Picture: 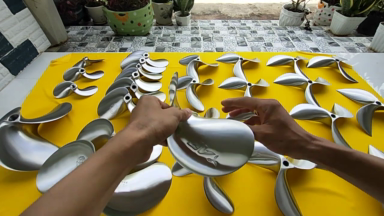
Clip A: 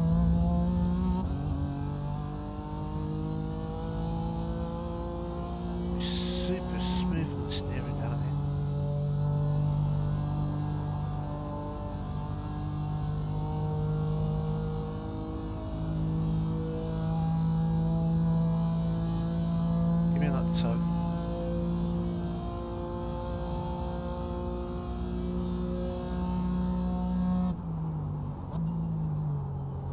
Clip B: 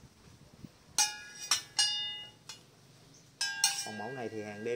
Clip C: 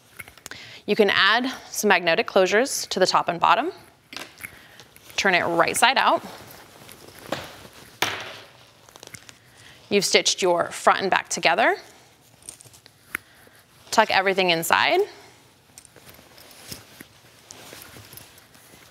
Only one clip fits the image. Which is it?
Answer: B